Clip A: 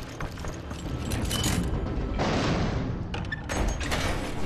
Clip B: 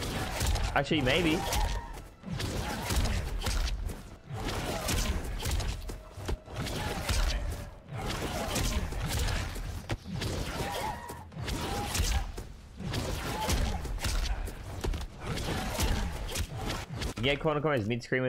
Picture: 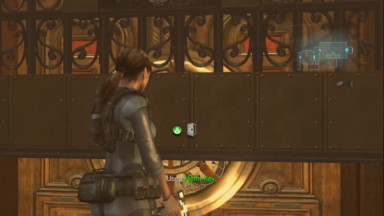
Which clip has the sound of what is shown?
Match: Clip A